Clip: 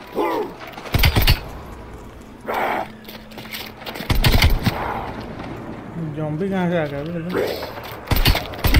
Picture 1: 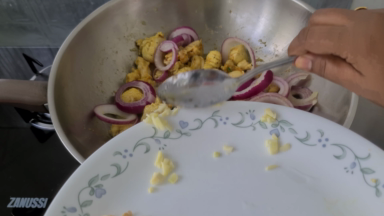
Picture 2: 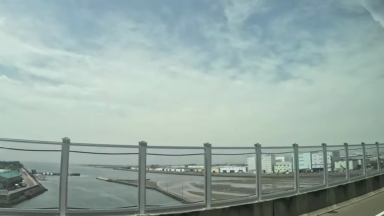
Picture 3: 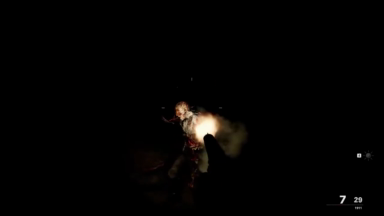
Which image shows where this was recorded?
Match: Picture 3